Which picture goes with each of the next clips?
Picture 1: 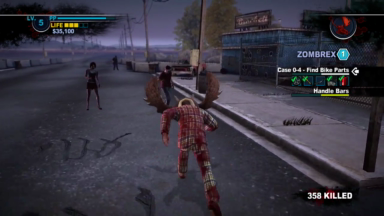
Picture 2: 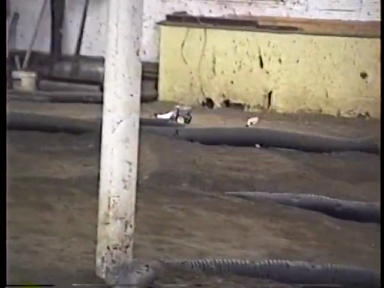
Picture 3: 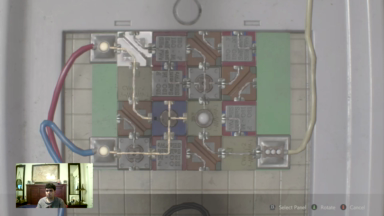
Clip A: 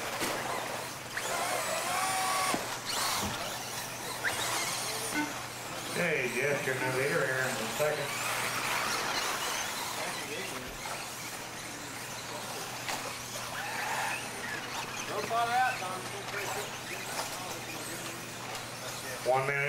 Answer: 2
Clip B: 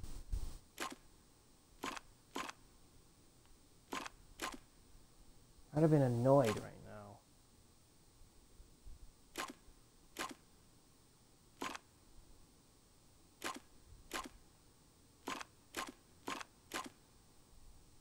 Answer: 3